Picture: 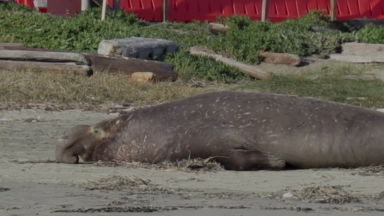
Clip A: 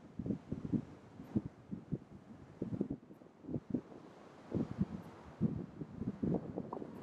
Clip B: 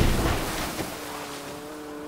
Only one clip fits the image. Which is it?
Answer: A